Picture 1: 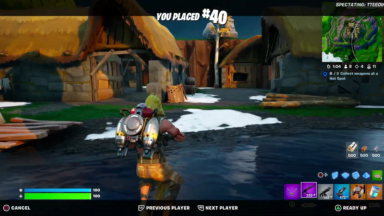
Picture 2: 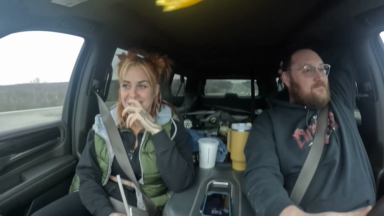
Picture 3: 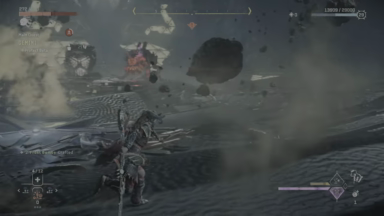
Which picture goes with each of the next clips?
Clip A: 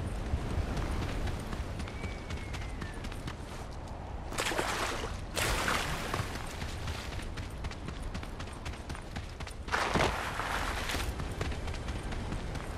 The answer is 1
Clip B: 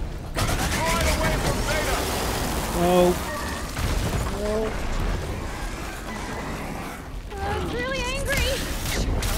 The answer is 3